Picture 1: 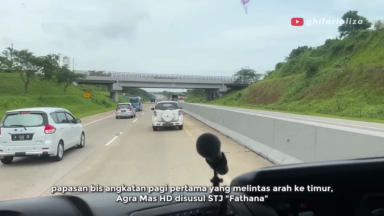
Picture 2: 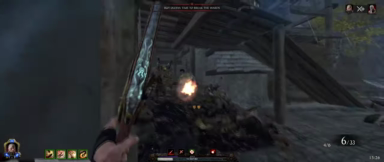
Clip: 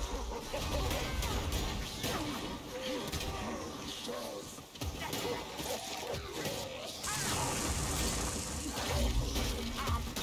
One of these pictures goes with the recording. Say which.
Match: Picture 2